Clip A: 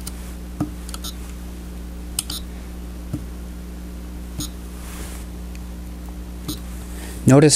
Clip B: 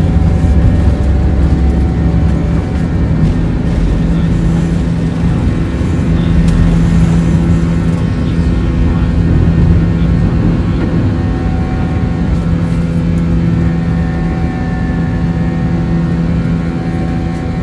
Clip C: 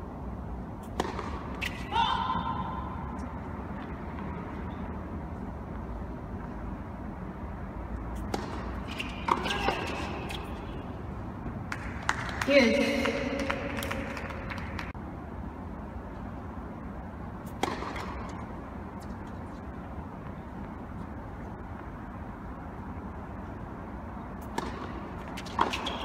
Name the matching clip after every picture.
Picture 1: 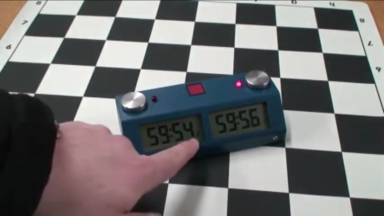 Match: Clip A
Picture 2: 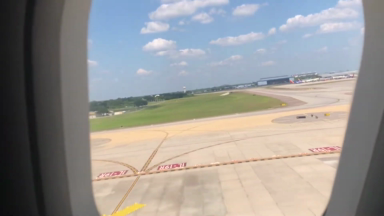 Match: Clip B